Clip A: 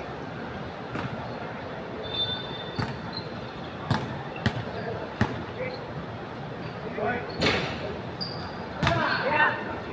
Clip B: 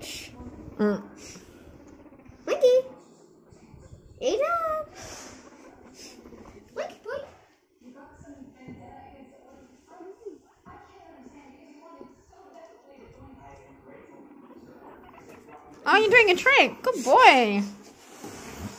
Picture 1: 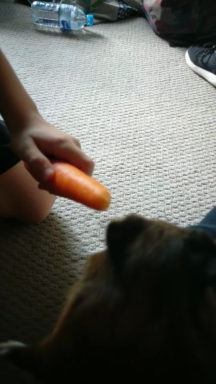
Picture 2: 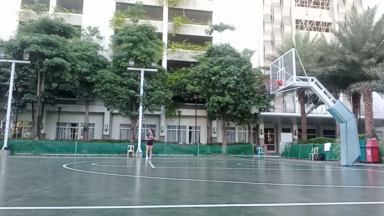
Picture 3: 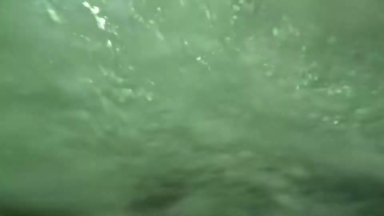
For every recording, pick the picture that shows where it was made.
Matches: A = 2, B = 1